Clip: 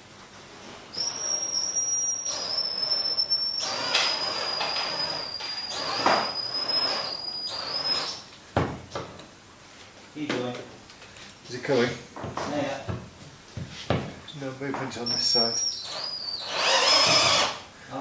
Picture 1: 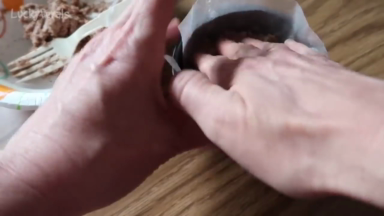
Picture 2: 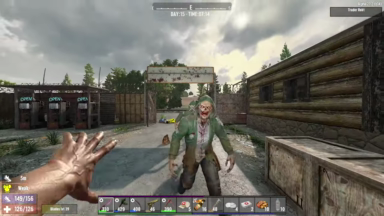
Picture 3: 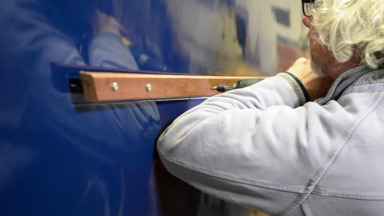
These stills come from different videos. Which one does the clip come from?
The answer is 3